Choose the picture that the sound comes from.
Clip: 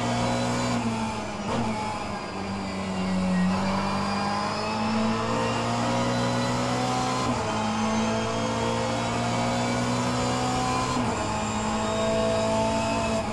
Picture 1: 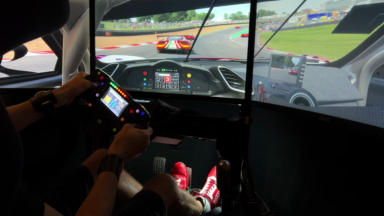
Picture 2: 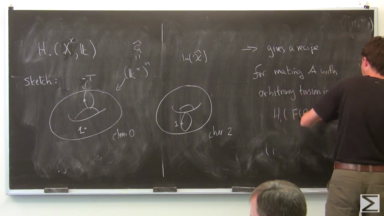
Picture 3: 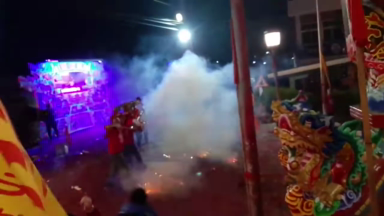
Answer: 1